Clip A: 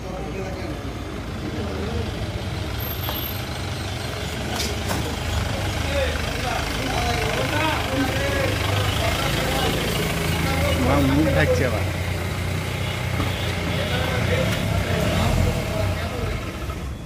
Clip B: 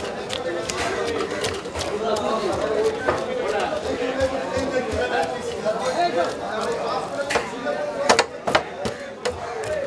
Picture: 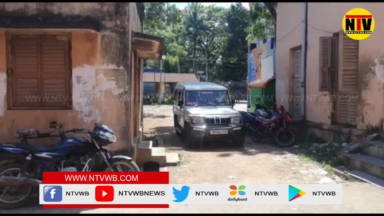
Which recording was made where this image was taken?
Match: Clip A